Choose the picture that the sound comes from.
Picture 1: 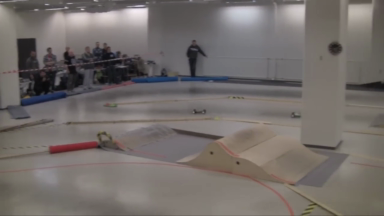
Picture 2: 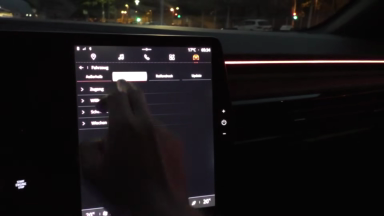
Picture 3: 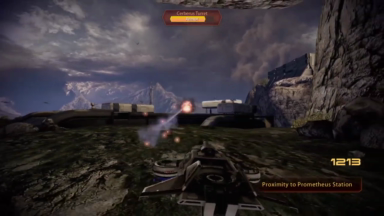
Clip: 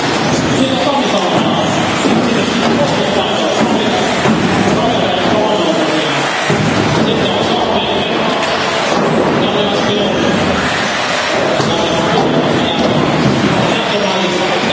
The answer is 1